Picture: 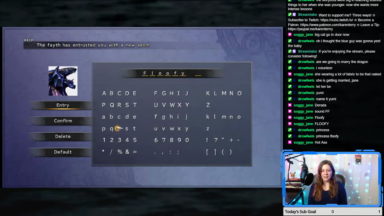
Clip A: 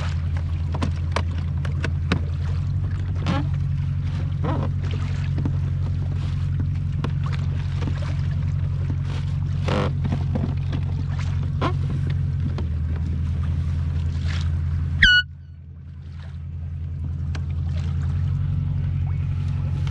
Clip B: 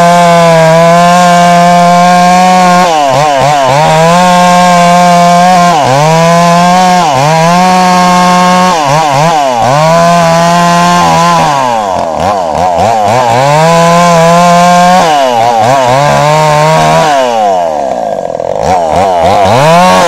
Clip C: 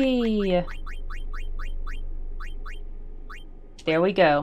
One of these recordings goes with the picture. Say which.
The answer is C